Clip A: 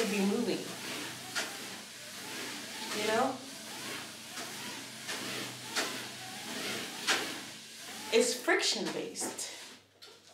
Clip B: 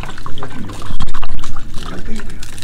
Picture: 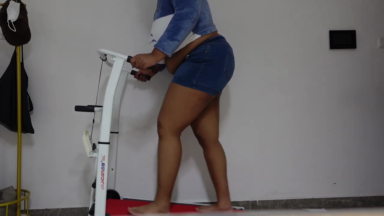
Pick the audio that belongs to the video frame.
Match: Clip A